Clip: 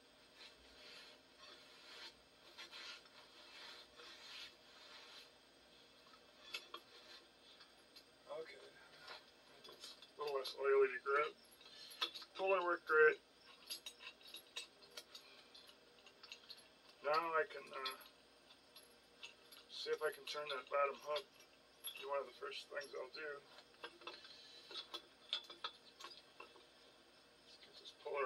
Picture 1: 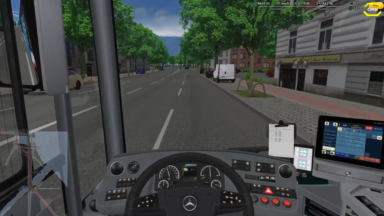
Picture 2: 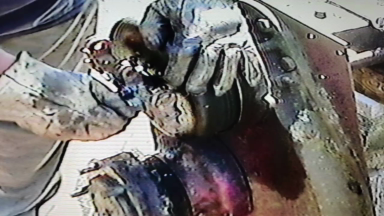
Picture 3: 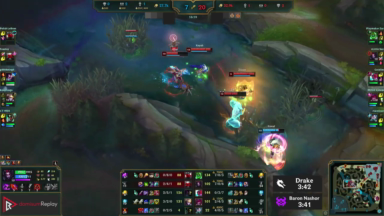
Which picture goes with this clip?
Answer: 2